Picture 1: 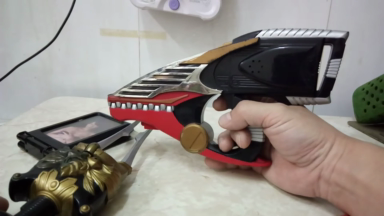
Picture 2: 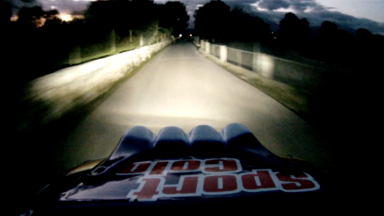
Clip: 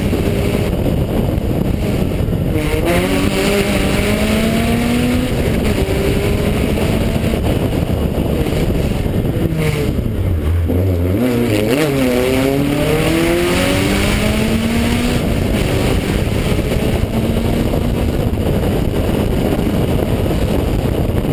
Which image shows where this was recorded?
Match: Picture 2